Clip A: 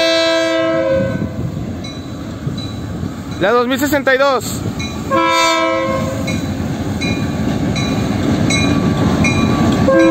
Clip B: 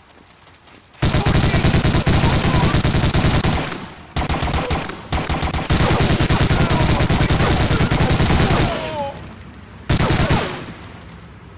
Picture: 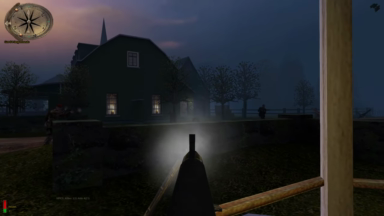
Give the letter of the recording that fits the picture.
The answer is B